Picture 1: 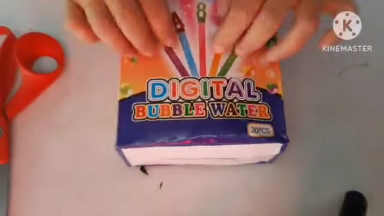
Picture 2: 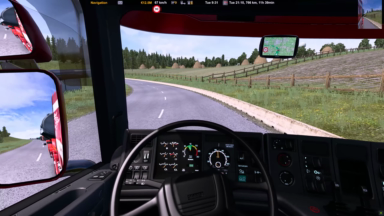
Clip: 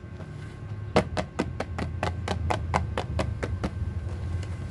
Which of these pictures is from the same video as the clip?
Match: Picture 1